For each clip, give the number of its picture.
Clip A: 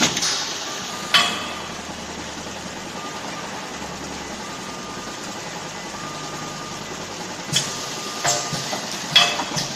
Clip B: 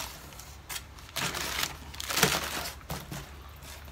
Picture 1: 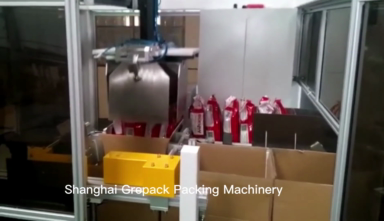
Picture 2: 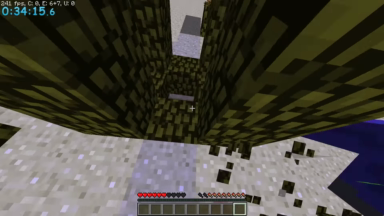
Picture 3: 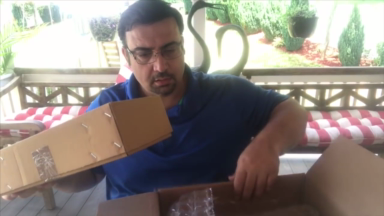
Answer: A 1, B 3